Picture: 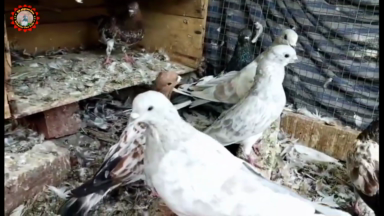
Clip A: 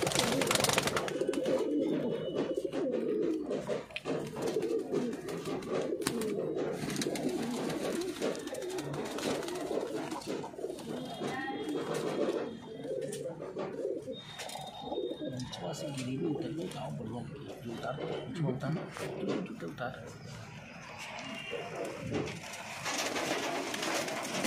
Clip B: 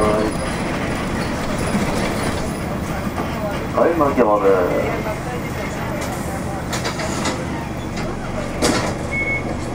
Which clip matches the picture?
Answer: A